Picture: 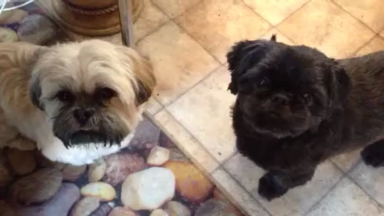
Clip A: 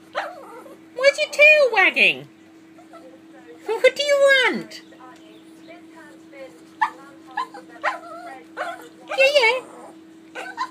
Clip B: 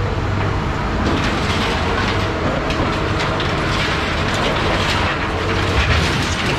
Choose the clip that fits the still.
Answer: A